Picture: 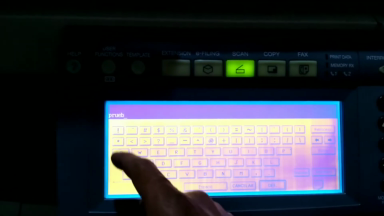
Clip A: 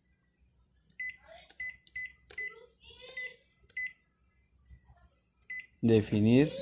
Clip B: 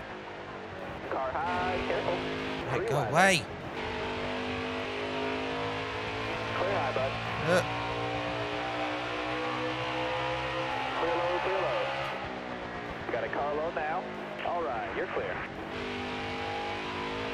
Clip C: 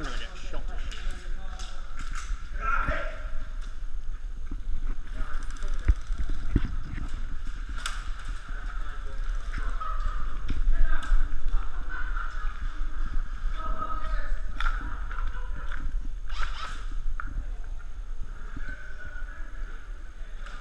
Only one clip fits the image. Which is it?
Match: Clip A